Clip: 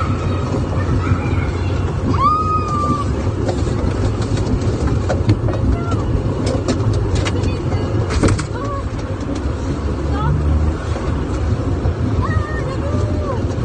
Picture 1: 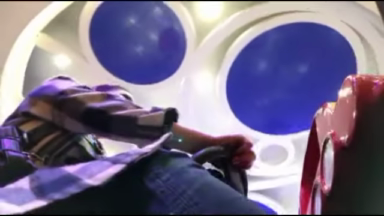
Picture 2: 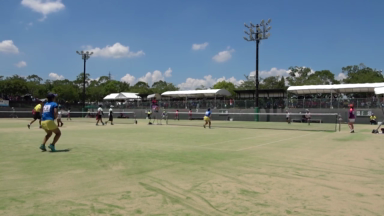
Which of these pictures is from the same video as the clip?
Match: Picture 1